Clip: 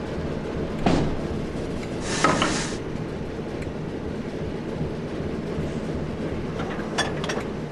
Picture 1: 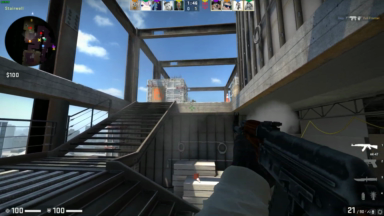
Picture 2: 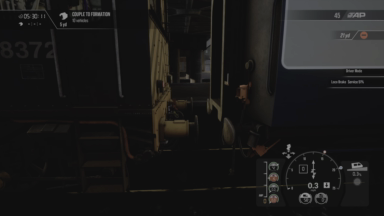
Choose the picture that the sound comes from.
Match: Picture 2